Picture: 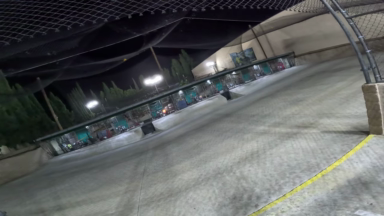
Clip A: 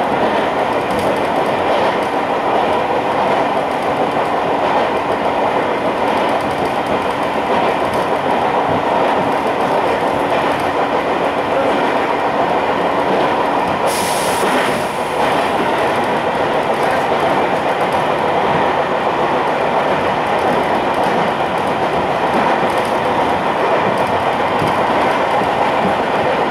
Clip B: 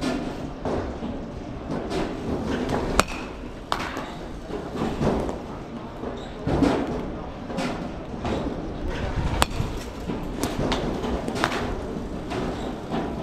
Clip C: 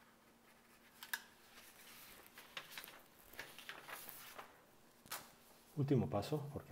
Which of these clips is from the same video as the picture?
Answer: B